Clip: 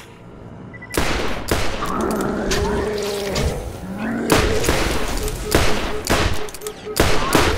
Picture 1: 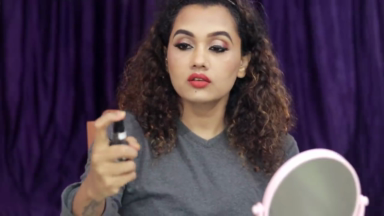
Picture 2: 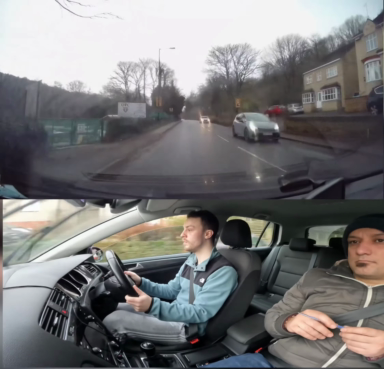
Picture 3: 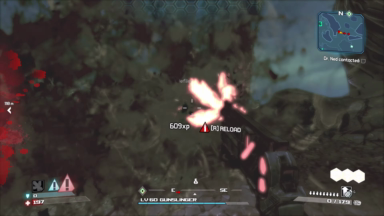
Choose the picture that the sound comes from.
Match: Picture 3